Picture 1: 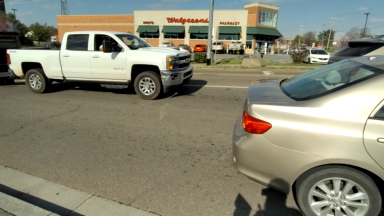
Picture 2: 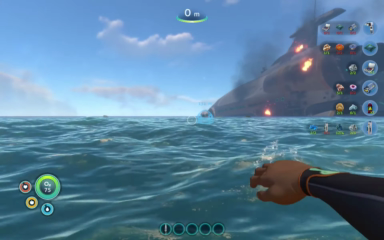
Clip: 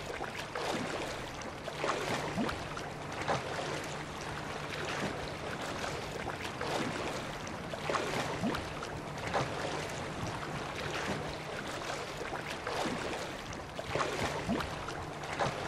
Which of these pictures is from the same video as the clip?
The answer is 2